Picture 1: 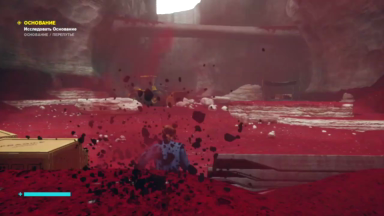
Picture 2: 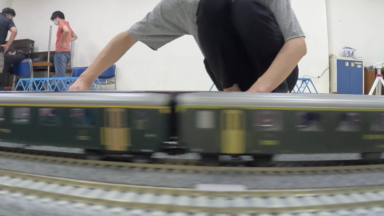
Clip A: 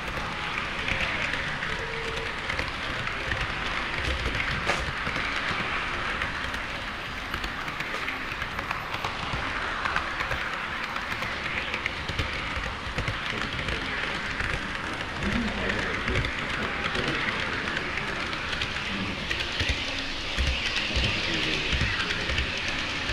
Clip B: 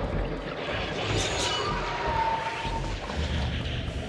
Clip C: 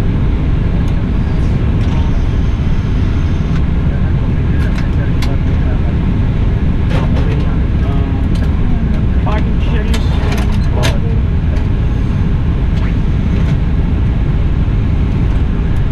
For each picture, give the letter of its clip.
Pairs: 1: B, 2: A